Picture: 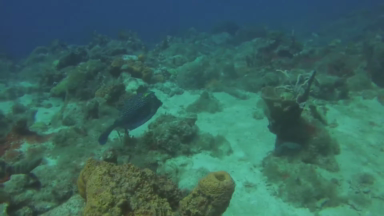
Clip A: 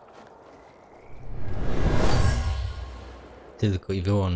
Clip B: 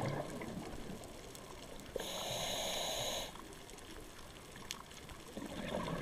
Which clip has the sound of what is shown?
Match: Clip B